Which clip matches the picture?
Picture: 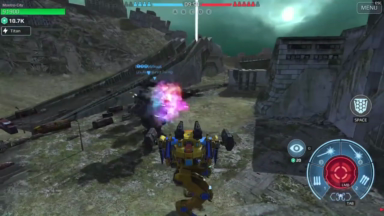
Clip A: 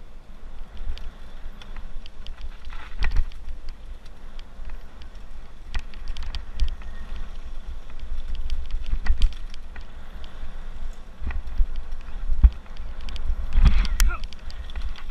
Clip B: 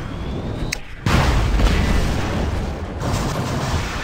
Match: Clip B